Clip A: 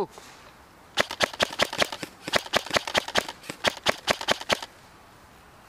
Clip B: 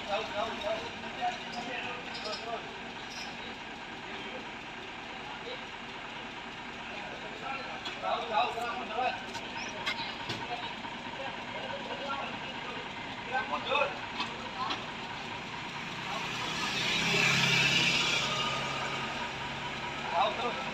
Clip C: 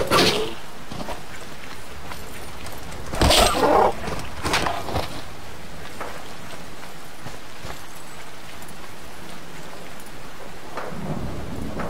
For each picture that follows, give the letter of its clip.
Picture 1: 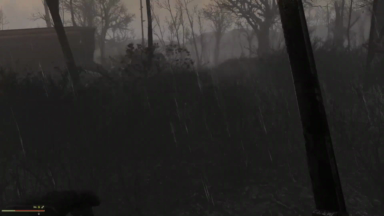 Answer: C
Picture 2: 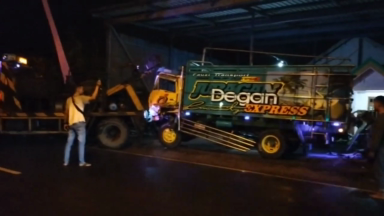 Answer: B